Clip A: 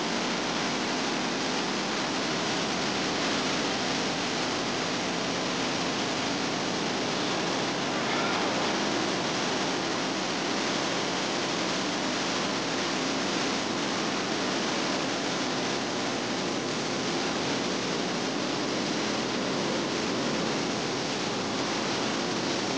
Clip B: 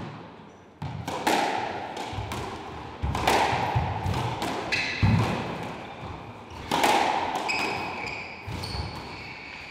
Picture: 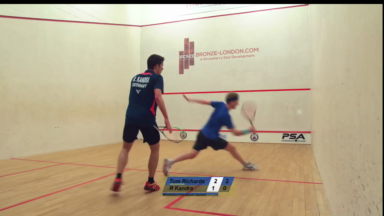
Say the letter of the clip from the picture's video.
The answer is B